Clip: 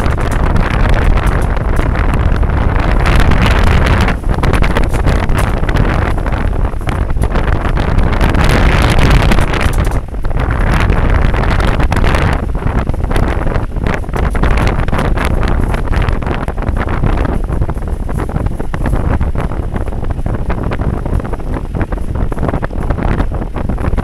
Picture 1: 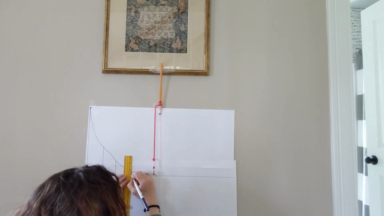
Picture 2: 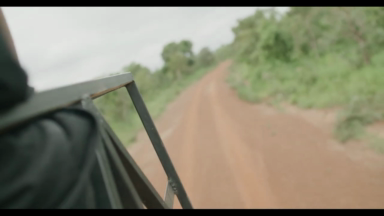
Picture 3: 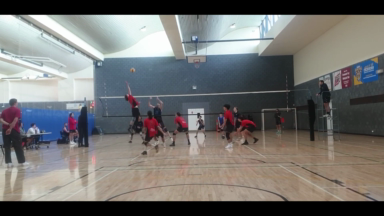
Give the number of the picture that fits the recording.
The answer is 2